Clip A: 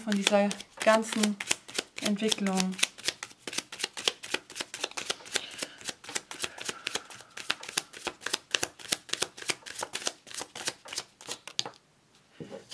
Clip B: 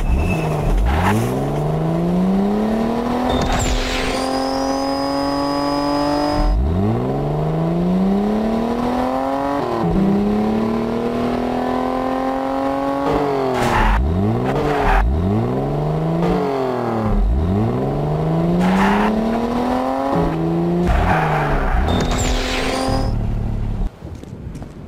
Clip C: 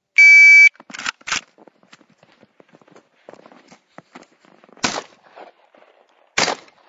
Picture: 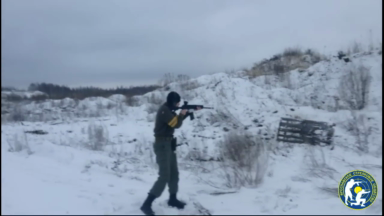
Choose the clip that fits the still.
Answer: C